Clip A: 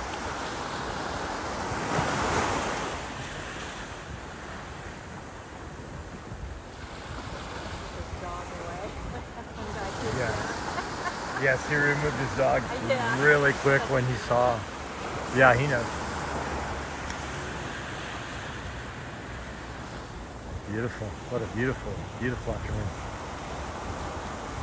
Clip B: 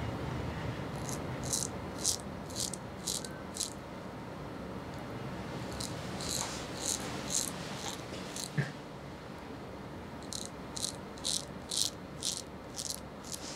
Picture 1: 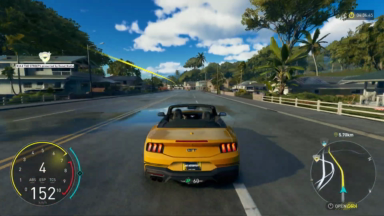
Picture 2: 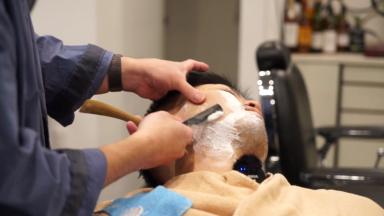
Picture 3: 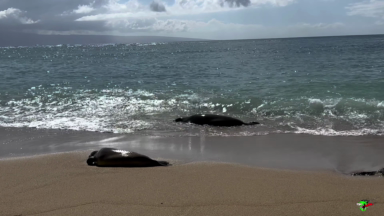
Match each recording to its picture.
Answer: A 3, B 2